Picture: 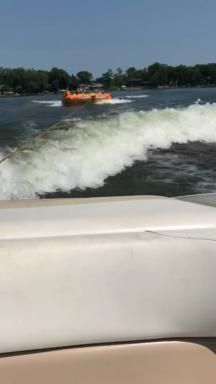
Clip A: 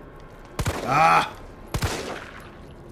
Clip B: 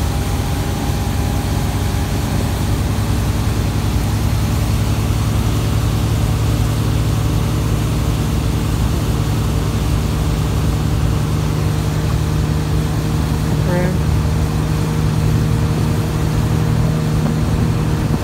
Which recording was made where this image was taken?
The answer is B